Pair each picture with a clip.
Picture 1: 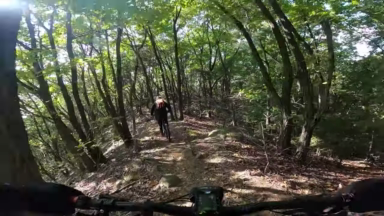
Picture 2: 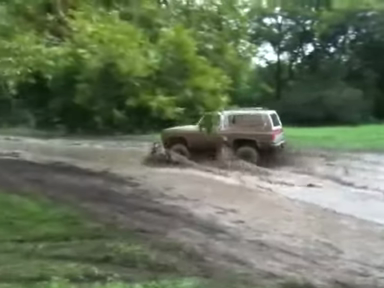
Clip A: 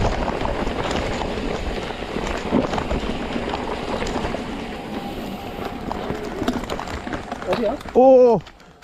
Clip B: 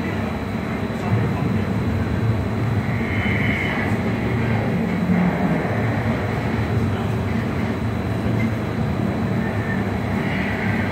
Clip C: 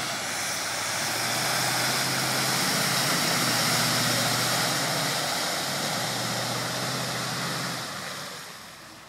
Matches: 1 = A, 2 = C